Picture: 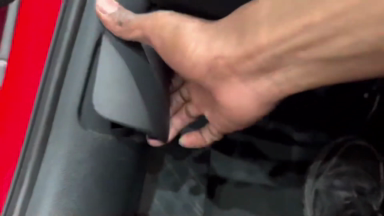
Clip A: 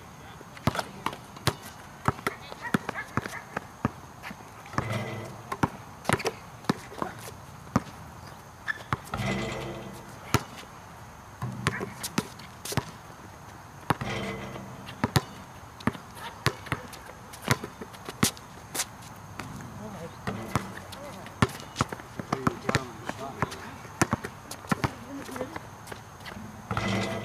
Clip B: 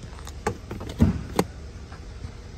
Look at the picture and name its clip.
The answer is B